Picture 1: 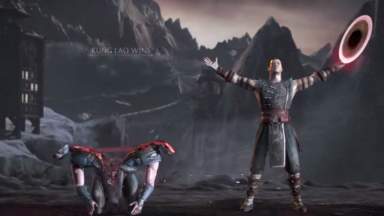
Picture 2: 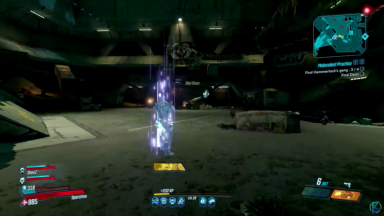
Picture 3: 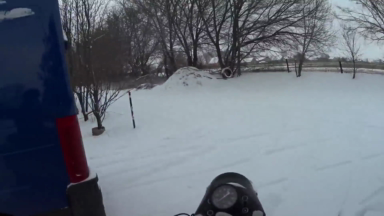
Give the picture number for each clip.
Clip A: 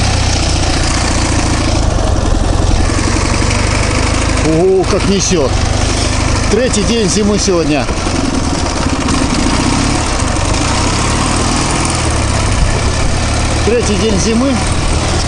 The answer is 3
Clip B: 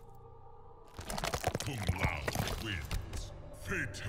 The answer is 1